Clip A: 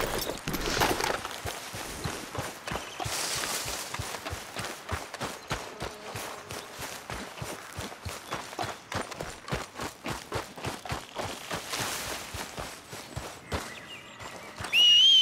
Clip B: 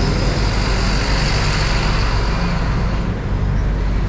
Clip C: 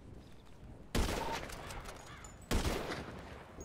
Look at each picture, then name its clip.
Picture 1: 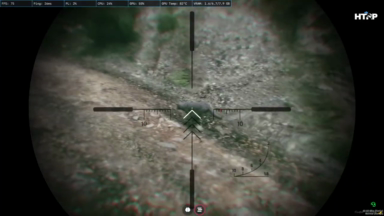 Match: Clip C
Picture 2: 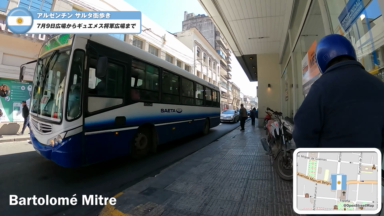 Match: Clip B